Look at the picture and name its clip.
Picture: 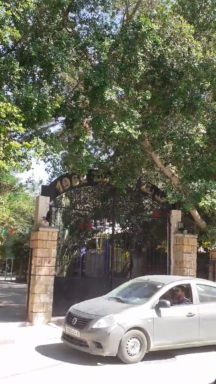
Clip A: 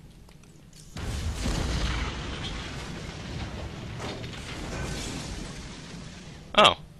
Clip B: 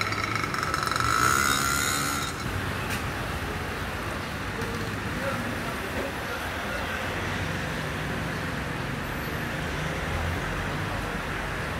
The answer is B